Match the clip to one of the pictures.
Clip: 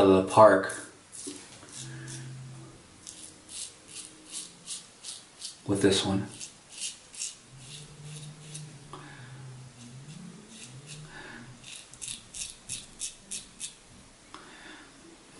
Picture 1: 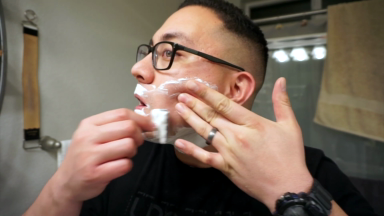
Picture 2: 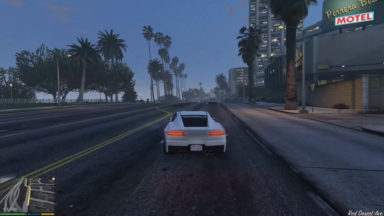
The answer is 1